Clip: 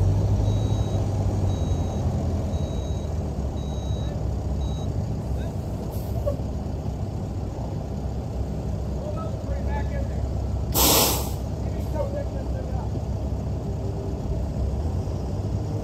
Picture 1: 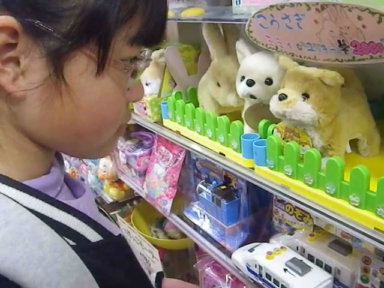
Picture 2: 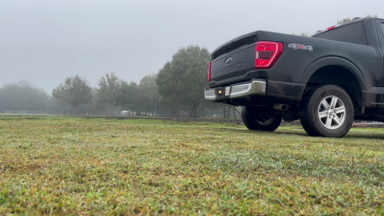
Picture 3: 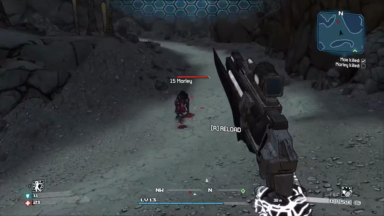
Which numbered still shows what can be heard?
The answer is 2